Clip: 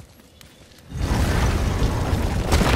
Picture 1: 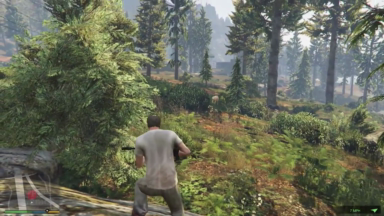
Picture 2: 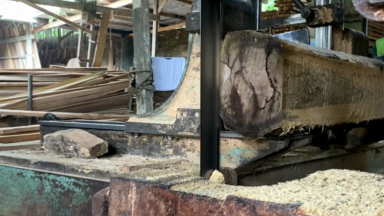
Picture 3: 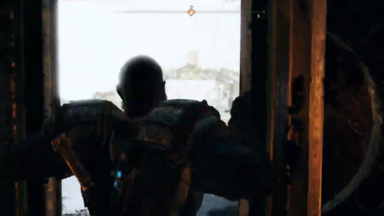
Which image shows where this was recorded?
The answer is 3